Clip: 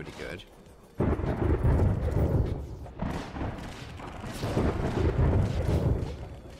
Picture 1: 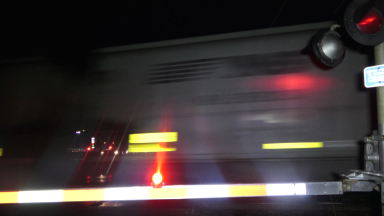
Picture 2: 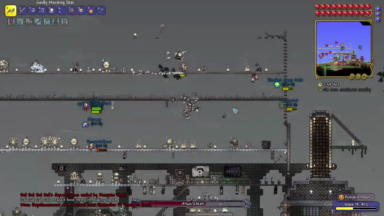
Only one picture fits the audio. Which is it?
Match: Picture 2